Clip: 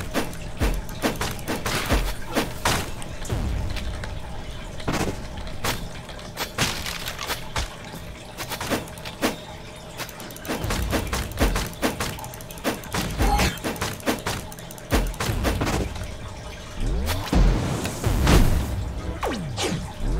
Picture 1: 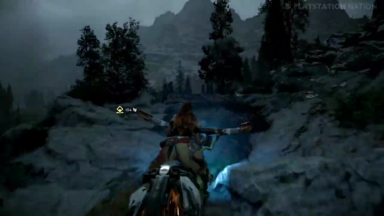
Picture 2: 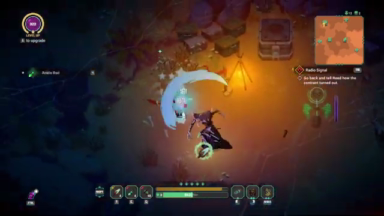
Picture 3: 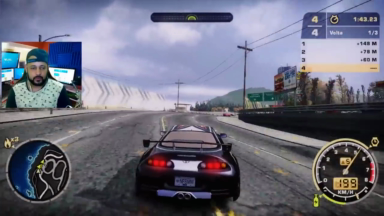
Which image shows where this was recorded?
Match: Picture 2